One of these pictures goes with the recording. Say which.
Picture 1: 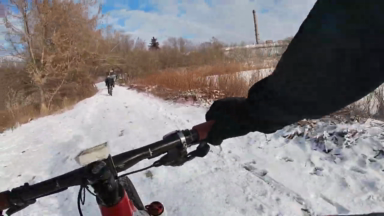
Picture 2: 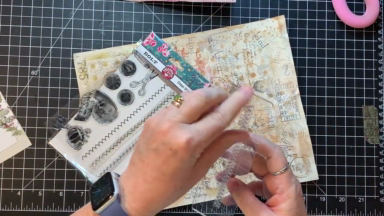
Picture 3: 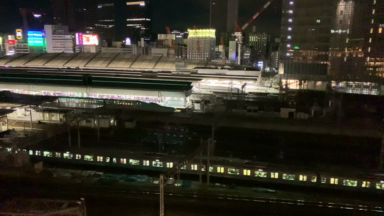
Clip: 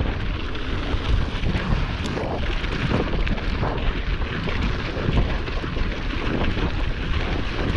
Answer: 1